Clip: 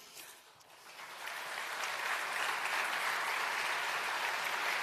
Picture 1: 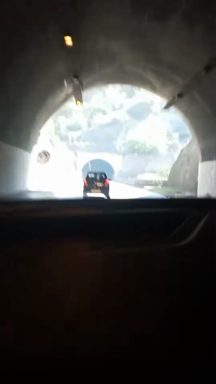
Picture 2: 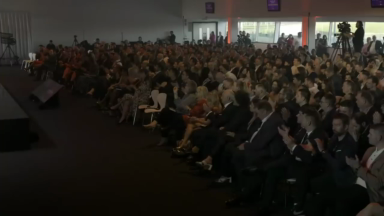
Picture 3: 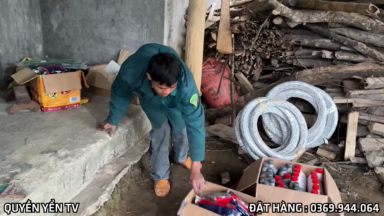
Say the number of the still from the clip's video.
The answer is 2